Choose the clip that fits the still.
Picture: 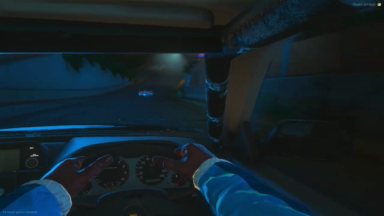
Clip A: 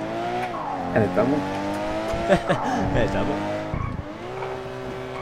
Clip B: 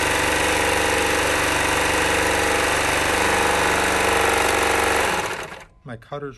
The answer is A